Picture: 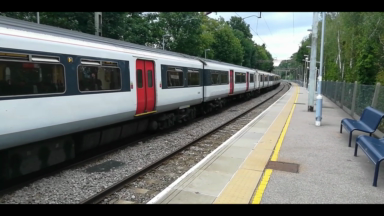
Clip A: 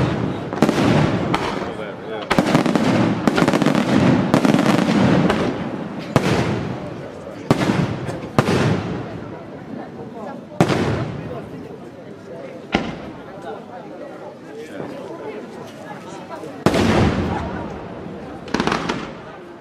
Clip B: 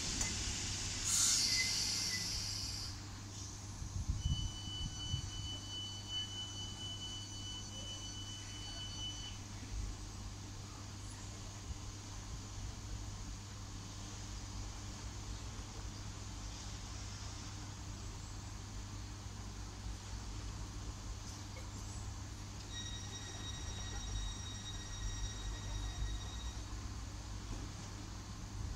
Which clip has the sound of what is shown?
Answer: B